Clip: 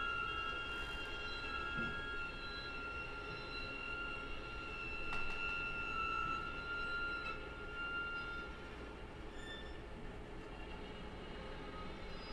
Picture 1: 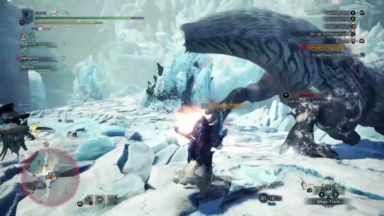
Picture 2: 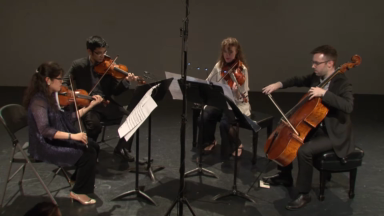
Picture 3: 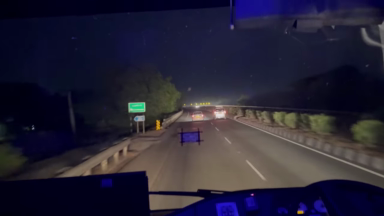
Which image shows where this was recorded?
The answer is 2